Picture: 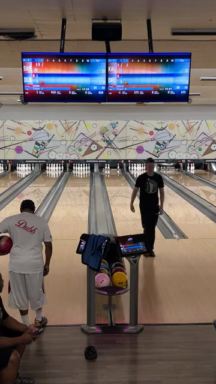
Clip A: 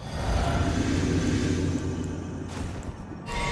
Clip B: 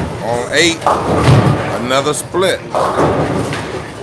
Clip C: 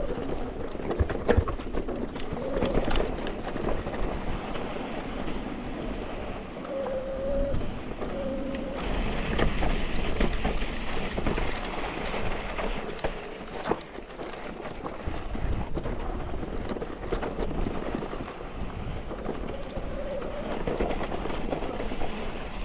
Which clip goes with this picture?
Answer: B